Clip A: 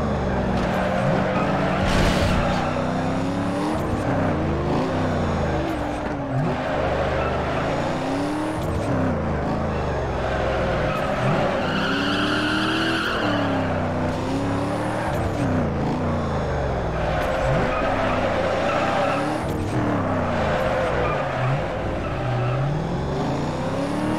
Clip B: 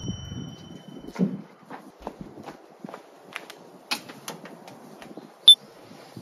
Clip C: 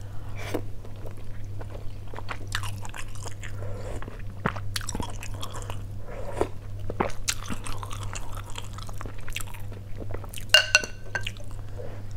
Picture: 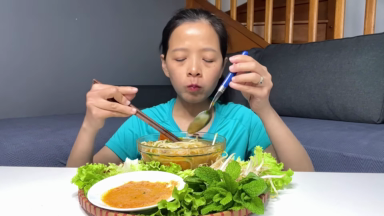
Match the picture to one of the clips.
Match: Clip C